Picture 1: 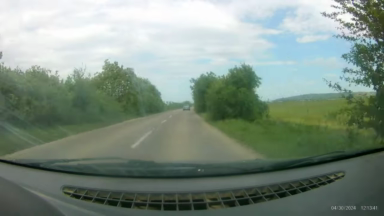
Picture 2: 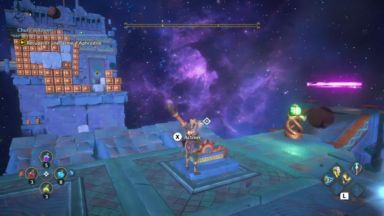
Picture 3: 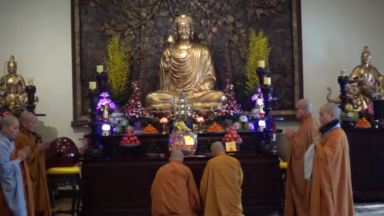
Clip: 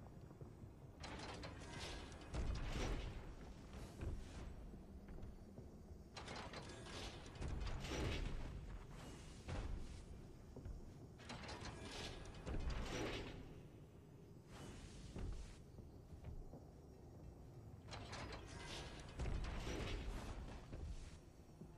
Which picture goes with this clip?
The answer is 2